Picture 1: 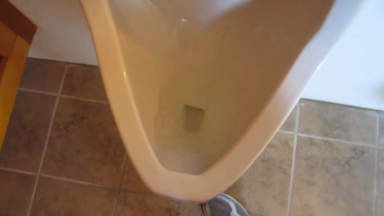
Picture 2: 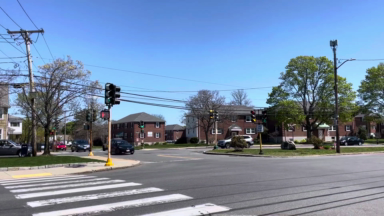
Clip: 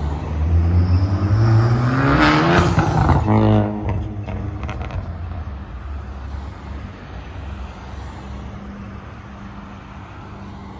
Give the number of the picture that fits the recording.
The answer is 2